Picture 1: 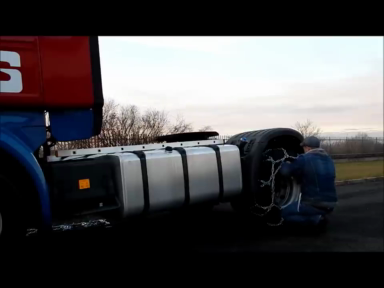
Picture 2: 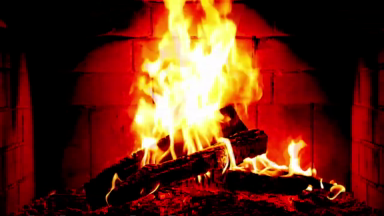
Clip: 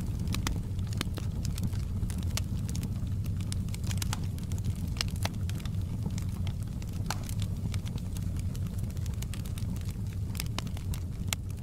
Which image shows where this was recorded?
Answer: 2